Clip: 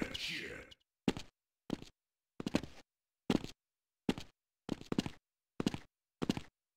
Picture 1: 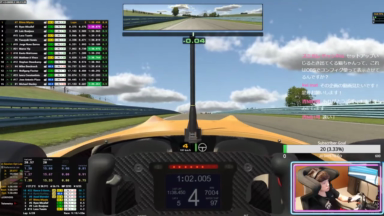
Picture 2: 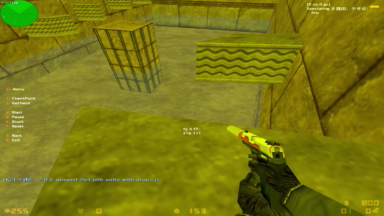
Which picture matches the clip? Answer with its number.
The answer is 2